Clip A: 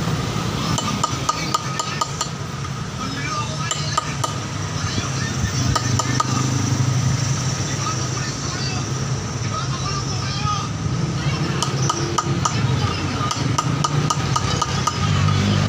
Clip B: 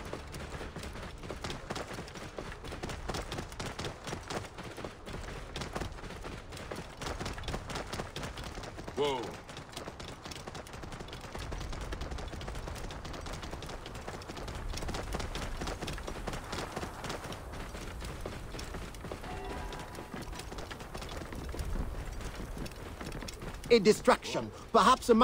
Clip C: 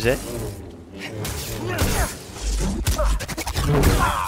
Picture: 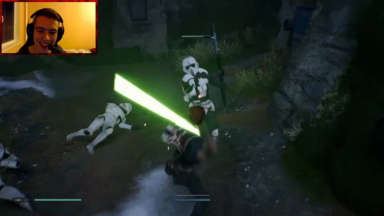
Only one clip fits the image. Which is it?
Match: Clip C